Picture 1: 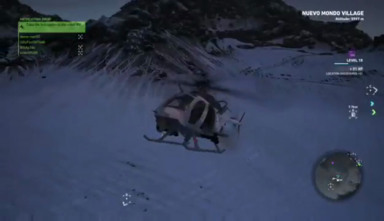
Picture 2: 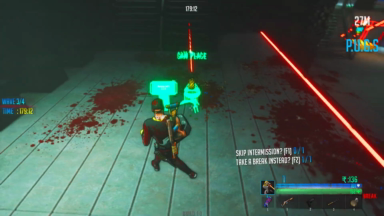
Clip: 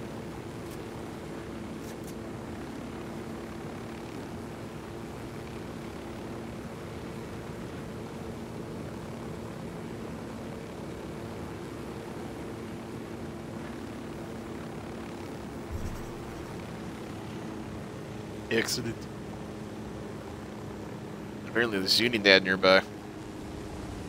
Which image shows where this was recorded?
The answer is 1